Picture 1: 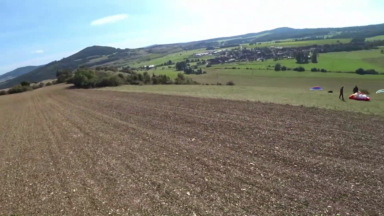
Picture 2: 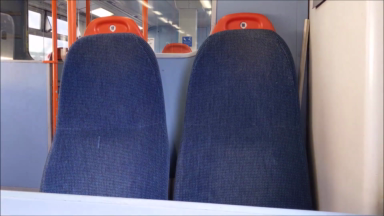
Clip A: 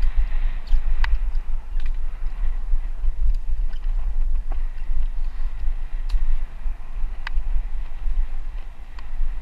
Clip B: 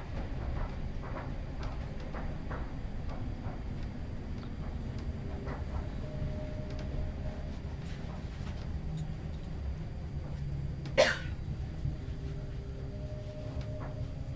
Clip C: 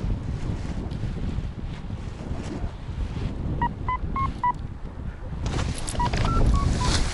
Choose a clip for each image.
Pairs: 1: C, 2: B